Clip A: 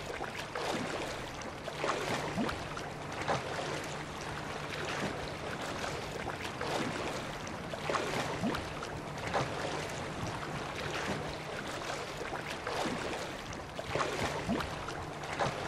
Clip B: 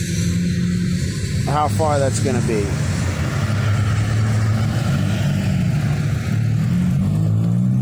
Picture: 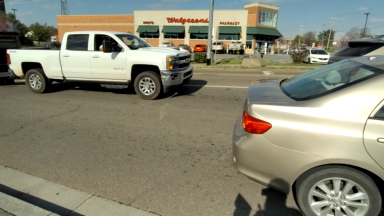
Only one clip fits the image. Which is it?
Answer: B